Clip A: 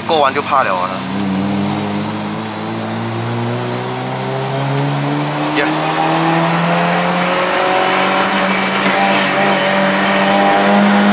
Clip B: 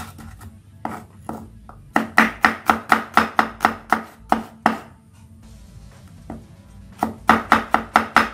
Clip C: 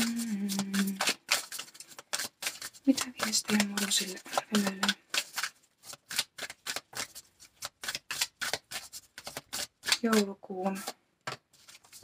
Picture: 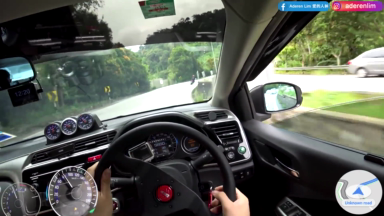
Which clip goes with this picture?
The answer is A